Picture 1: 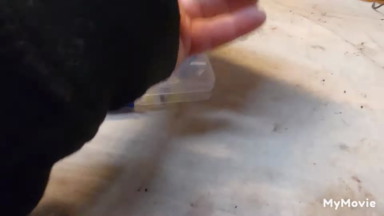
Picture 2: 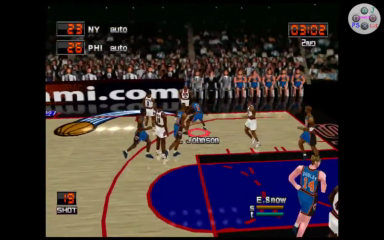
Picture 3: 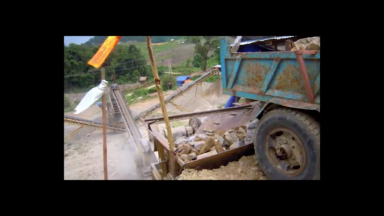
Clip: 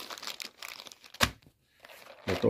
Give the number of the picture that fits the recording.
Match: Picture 1